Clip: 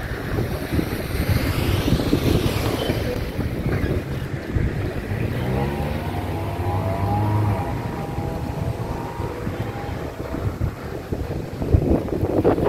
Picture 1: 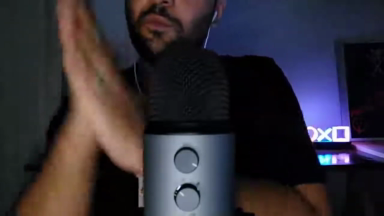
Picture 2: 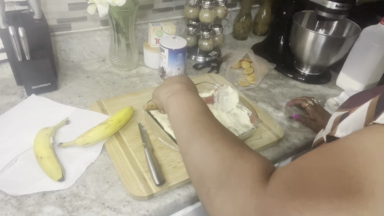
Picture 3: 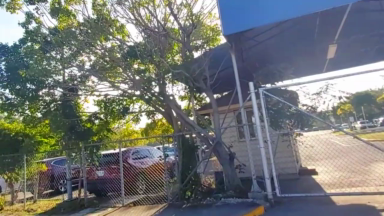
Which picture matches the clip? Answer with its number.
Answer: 3